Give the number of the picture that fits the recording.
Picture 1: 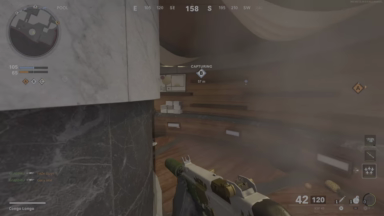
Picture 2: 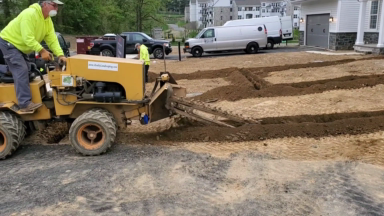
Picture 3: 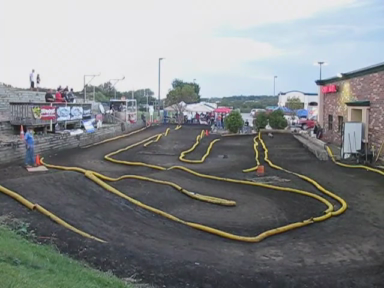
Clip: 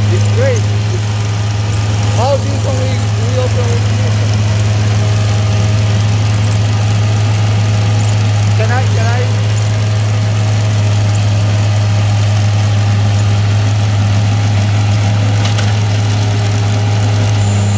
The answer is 2